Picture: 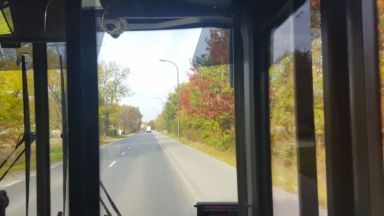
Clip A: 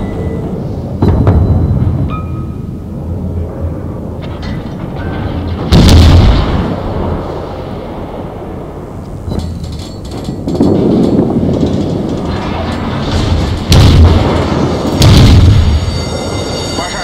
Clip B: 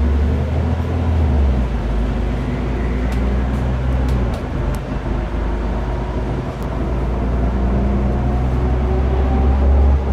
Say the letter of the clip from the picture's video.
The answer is B